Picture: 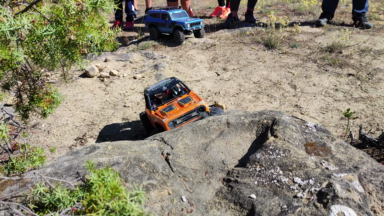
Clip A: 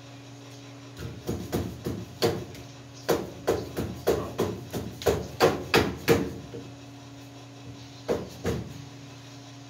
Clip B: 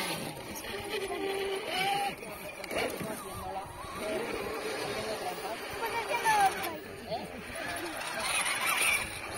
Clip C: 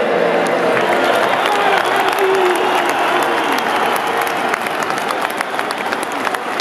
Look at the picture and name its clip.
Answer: B